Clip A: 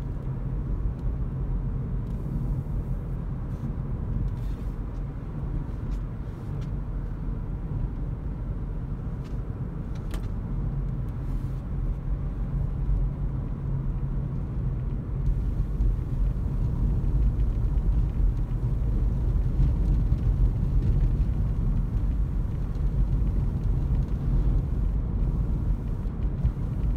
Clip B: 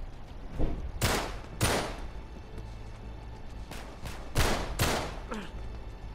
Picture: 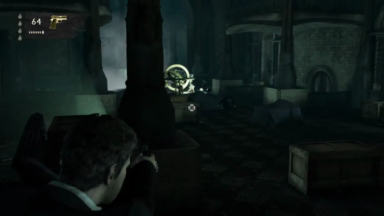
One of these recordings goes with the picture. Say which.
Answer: B